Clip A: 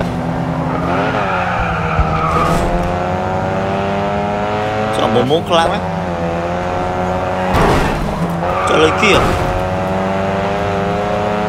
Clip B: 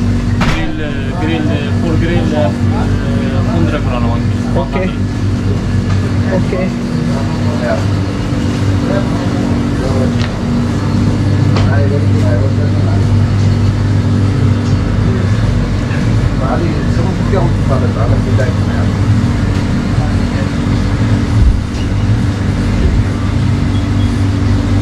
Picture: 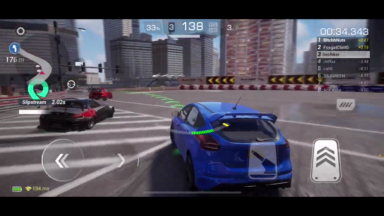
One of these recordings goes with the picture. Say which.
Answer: A